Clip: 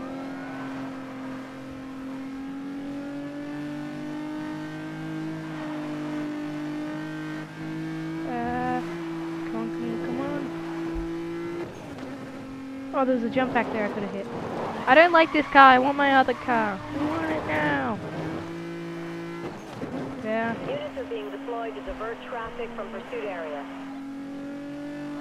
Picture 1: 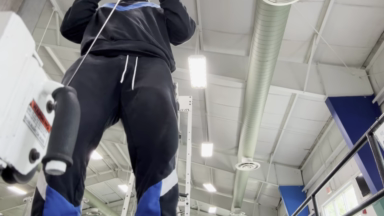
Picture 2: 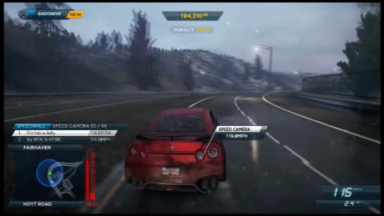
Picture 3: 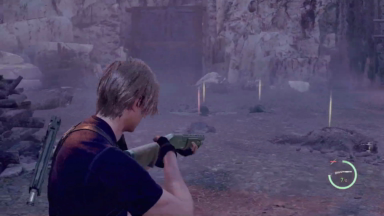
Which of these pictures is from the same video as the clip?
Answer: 2